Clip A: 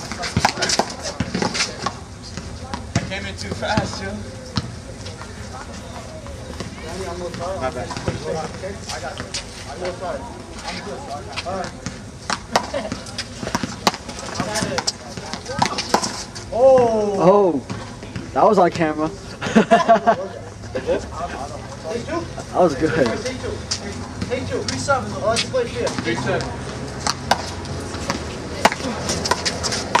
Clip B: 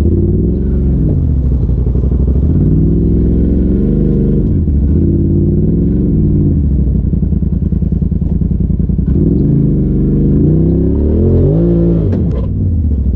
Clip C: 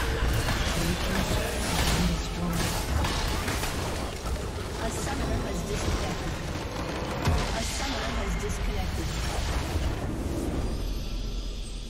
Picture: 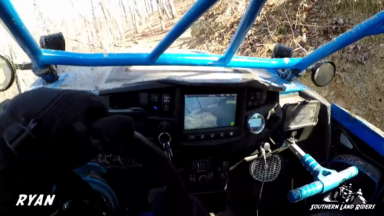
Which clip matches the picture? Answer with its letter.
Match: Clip B